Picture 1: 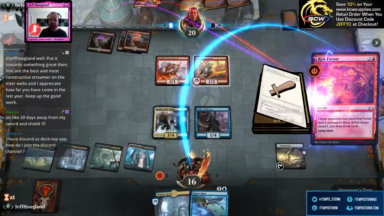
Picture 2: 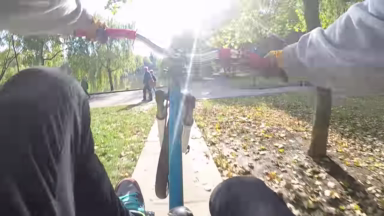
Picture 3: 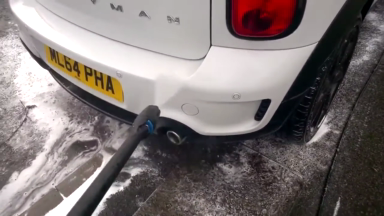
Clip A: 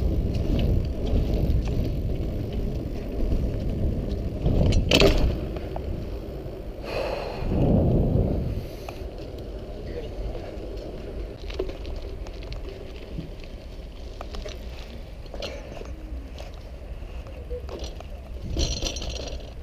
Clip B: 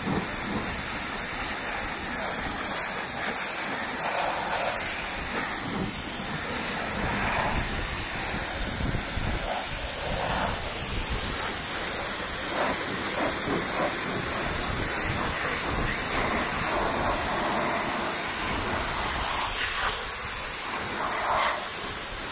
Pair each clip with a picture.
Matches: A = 2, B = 3